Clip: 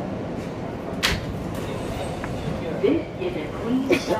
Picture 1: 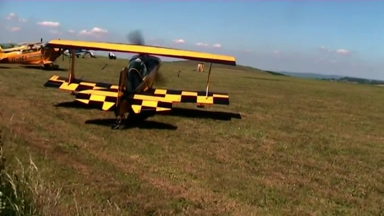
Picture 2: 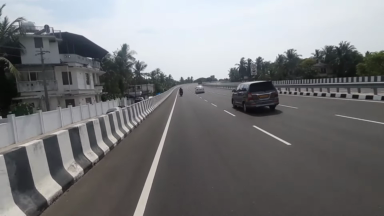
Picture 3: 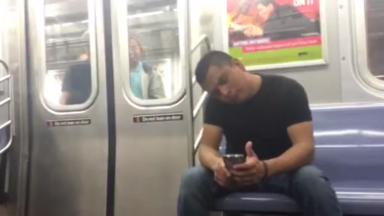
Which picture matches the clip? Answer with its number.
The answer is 3